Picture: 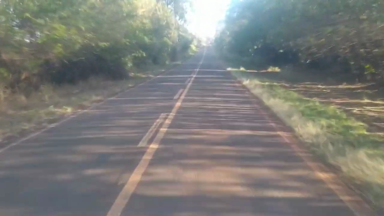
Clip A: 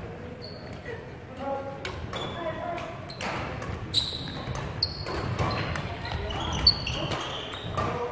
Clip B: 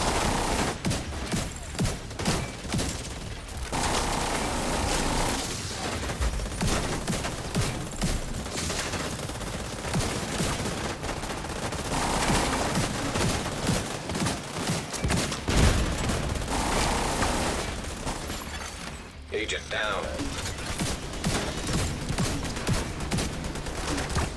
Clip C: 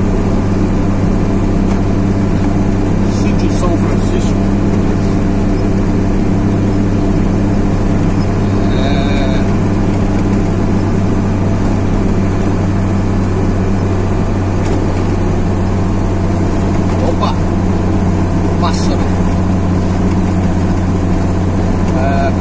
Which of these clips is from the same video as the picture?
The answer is C